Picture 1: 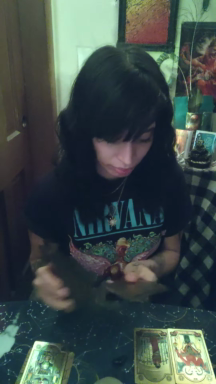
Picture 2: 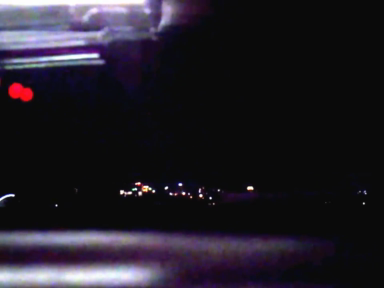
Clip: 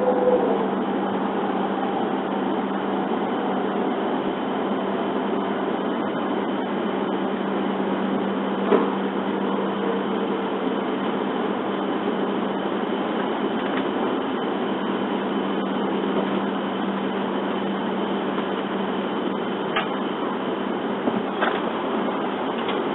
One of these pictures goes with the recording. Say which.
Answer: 2